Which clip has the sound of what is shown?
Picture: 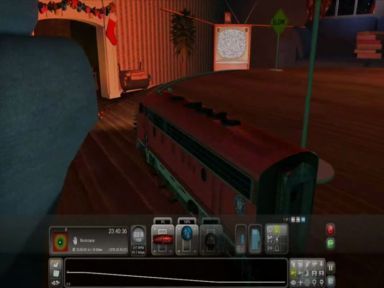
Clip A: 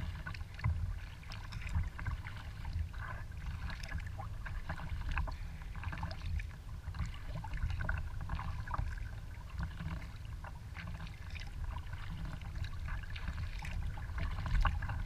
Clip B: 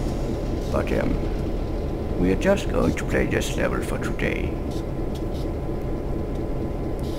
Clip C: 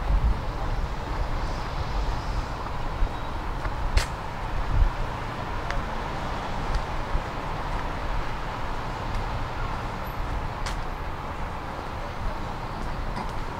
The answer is B